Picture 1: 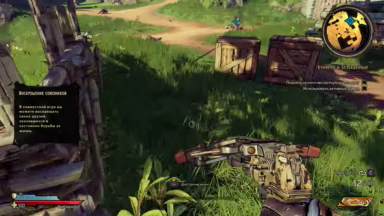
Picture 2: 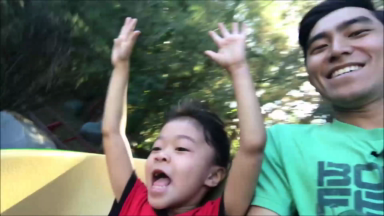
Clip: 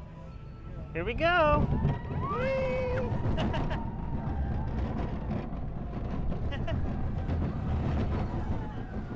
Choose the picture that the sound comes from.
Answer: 2